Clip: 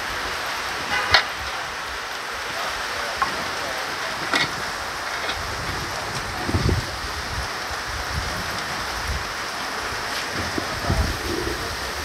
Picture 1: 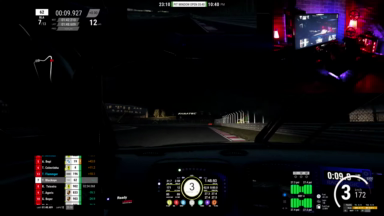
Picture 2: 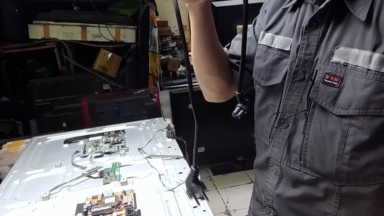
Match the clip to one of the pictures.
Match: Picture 2